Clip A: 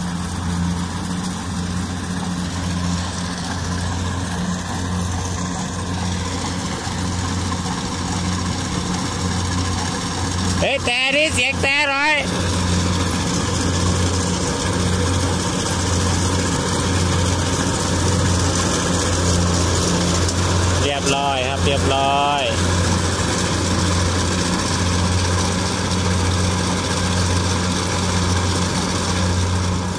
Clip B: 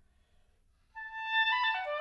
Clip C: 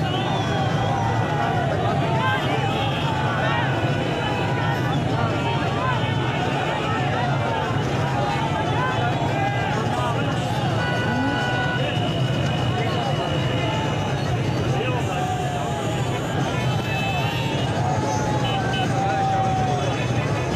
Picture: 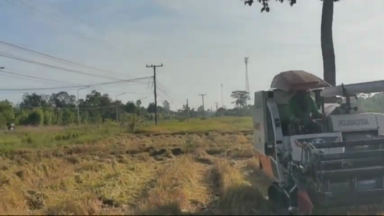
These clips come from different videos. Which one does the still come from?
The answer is A